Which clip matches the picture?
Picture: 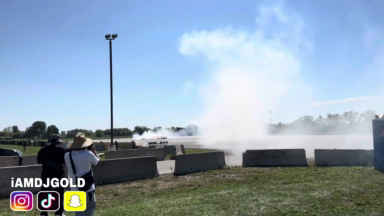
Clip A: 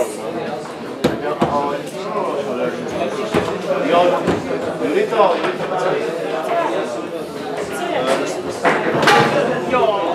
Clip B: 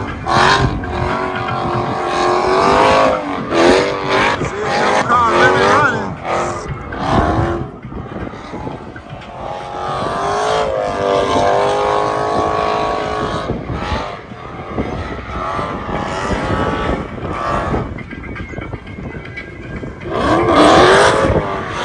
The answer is B